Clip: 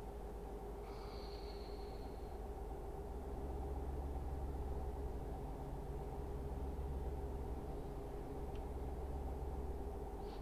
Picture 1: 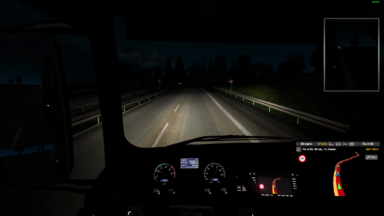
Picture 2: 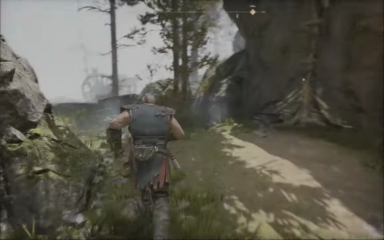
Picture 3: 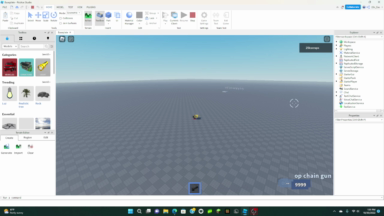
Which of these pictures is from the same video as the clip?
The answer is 1